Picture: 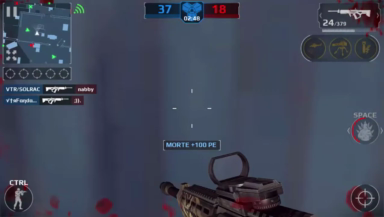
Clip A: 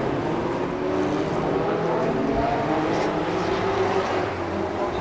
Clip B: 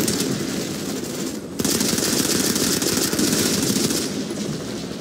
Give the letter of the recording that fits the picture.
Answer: B